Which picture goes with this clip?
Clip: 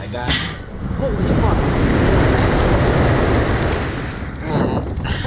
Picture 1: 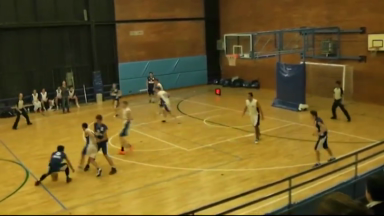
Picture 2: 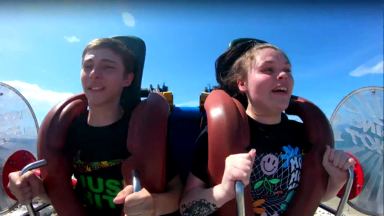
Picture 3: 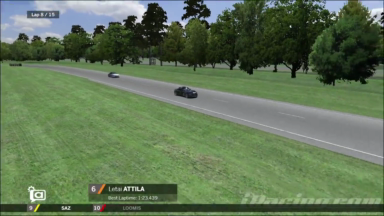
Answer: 2